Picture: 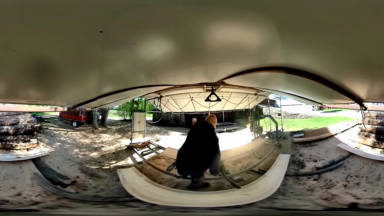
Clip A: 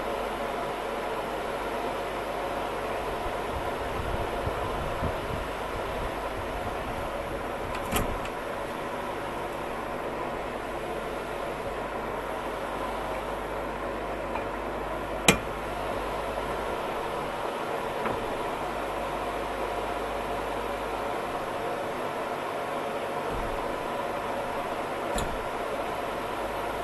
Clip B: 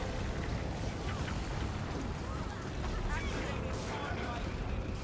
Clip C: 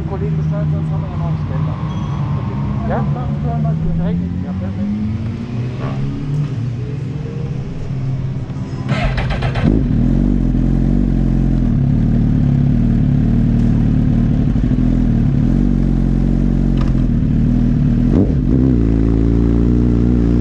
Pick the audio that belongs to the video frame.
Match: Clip A